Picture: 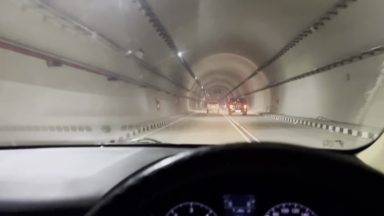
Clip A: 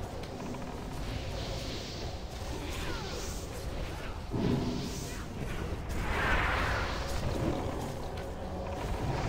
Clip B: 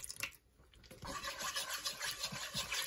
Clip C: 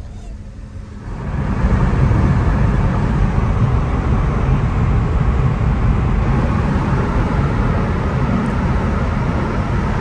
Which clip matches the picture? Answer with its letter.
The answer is C